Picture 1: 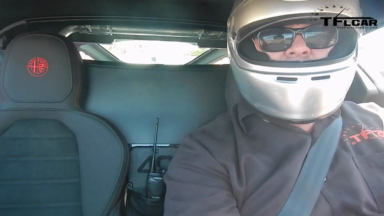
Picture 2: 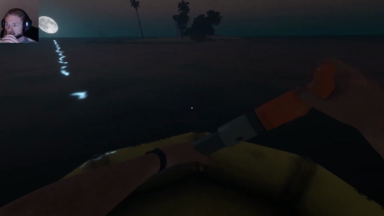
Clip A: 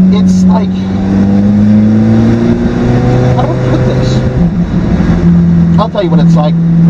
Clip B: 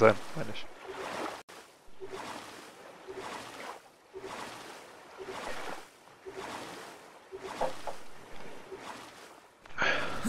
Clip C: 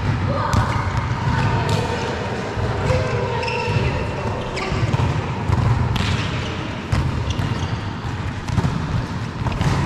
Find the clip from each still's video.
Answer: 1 A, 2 B